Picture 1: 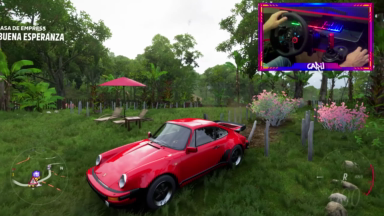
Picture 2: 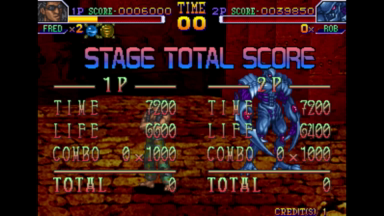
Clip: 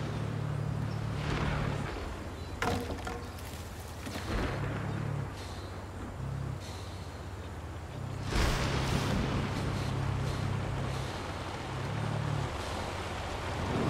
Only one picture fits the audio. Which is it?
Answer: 1